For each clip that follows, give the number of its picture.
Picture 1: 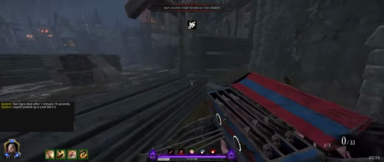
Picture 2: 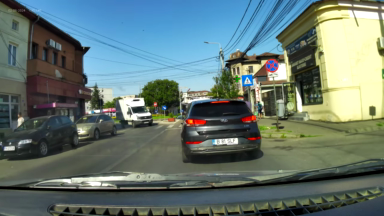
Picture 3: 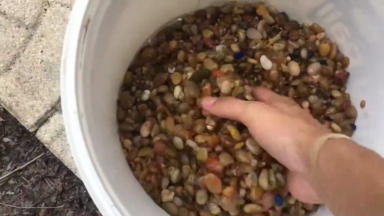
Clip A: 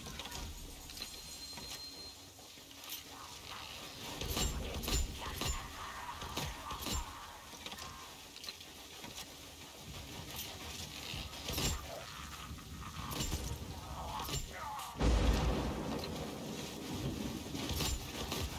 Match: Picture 1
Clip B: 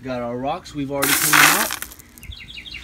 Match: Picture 3